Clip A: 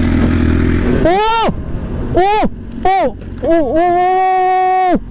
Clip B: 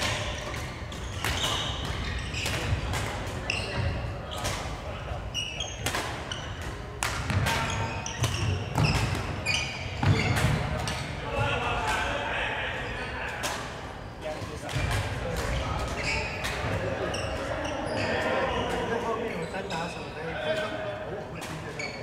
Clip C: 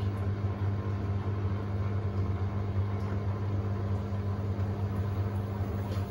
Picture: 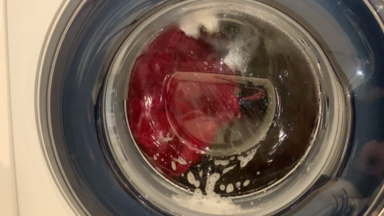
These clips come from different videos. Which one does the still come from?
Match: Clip C